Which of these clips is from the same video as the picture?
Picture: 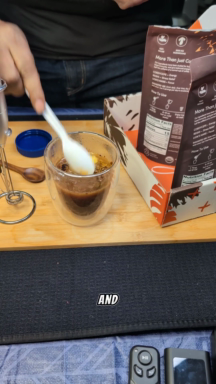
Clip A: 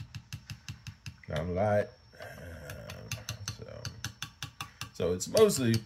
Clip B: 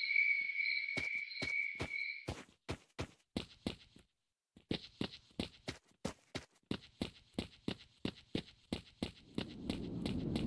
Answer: A